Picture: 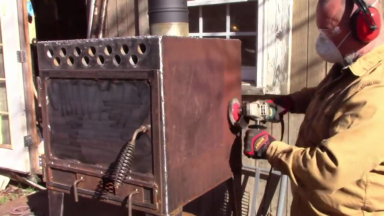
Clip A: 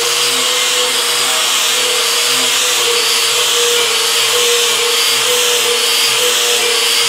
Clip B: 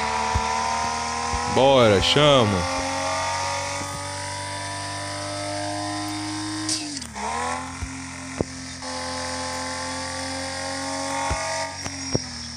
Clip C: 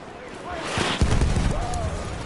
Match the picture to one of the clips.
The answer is A